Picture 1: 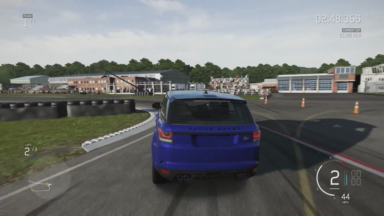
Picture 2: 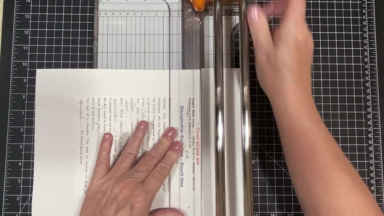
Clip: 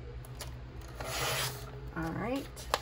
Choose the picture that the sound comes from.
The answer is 2